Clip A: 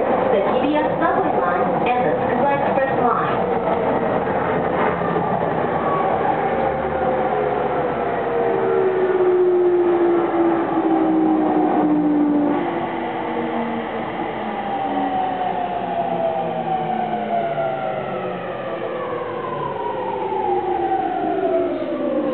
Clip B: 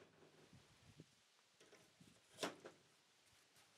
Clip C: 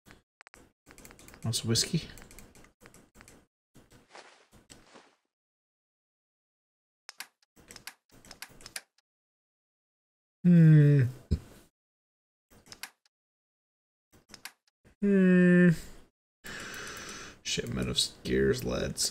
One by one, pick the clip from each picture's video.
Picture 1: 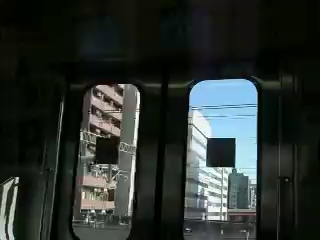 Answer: A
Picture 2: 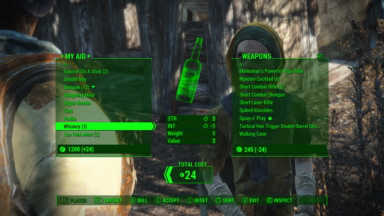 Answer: C